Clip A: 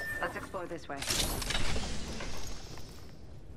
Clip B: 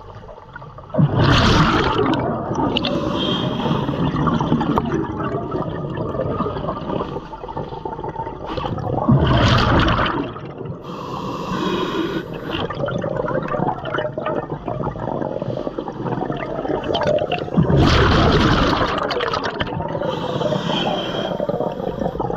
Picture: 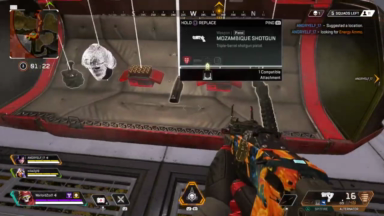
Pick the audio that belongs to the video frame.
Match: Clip A